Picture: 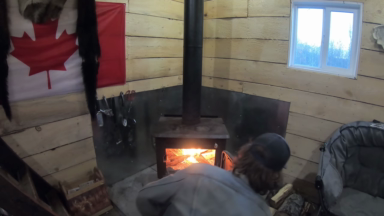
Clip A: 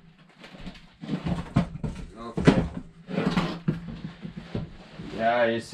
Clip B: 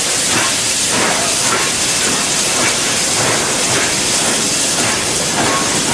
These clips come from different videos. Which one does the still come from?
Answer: A